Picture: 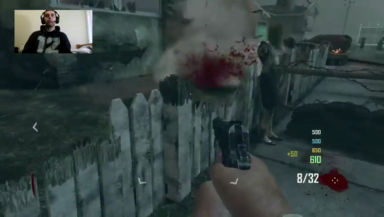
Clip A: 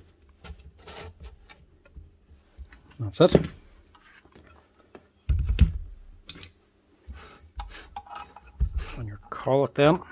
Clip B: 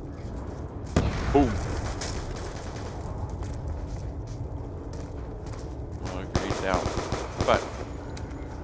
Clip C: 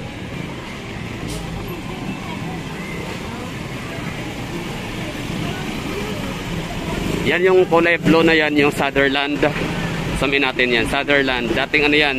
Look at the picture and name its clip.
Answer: B